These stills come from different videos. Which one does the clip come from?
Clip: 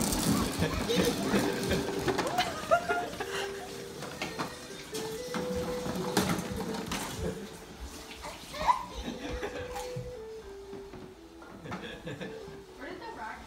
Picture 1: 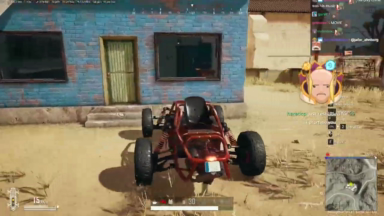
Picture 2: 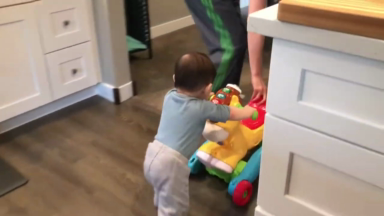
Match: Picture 2